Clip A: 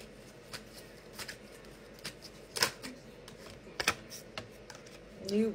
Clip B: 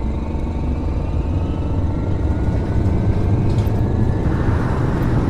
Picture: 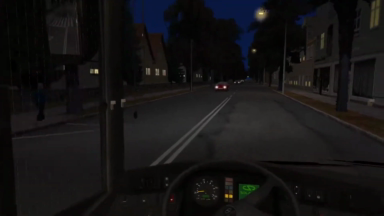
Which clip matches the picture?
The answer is B